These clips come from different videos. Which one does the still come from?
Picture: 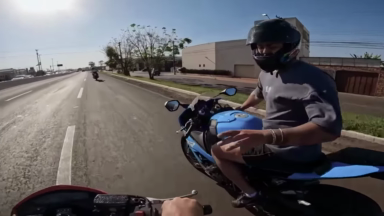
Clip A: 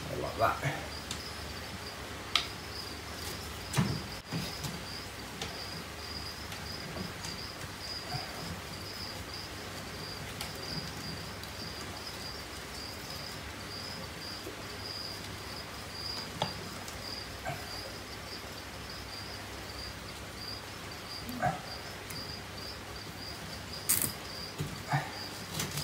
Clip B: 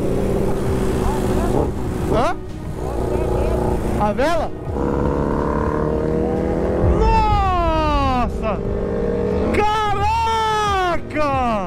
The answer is B